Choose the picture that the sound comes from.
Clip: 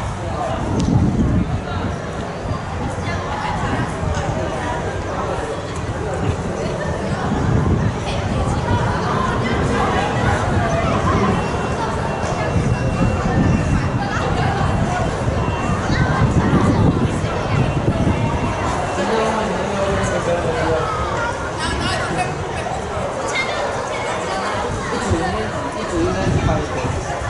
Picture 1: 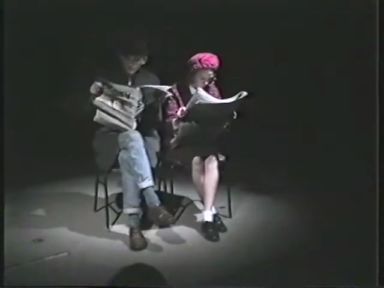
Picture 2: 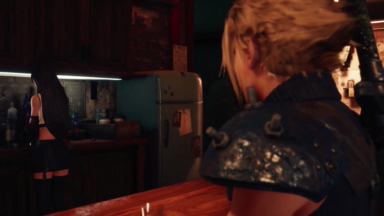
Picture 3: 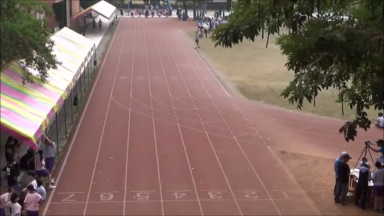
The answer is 3